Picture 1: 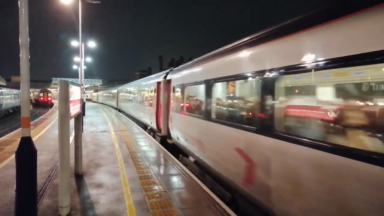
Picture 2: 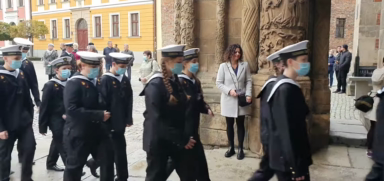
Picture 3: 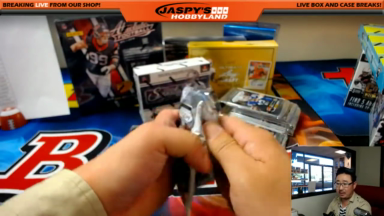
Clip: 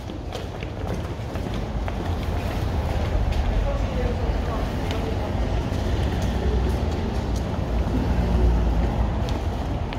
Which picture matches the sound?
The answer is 2